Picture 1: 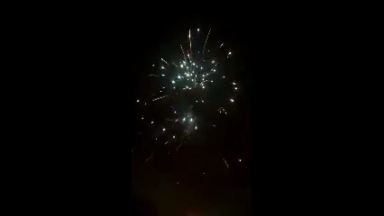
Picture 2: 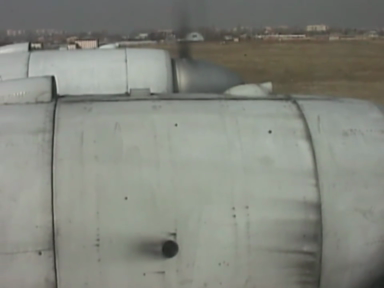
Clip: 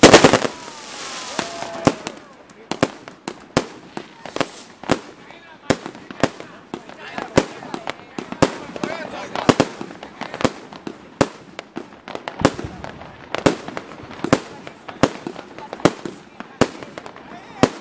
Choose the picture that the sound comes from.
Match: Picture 1